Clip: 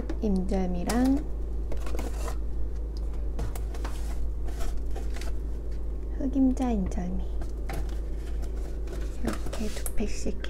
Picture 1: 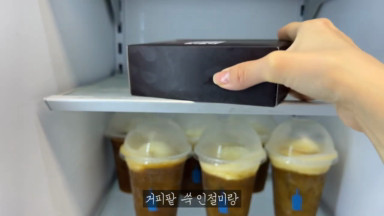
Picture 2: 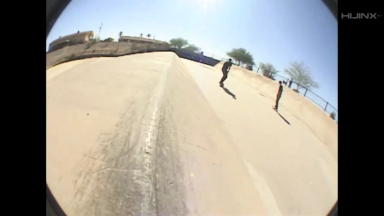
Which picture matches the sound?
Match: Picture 1